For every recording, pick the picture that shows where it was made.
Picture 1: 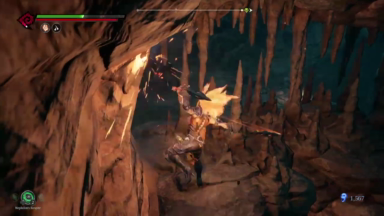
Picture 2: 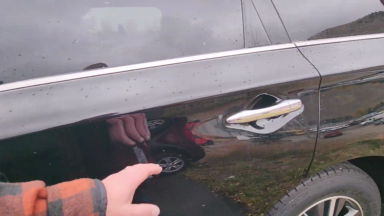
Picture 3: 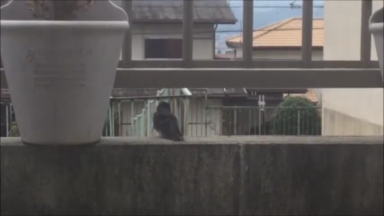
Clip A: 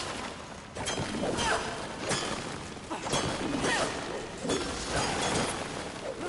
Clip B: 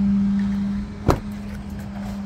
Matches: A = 1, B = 2